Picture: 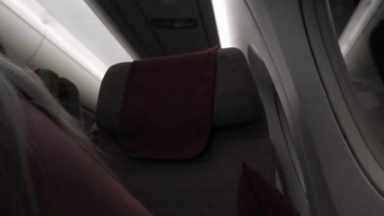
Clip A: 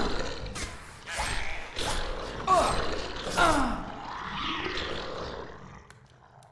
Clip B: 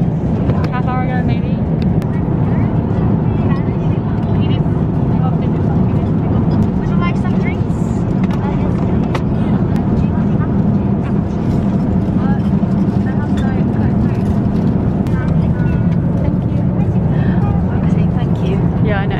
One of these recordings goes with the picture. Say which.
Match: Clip B